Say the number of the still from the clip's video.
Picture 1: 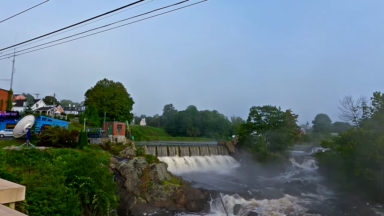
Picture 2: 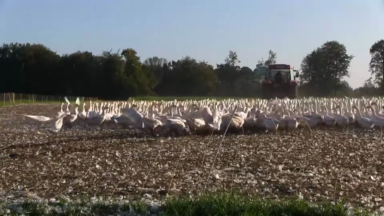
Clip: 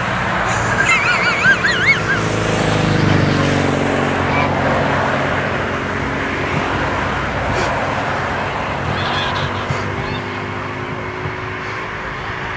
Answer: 2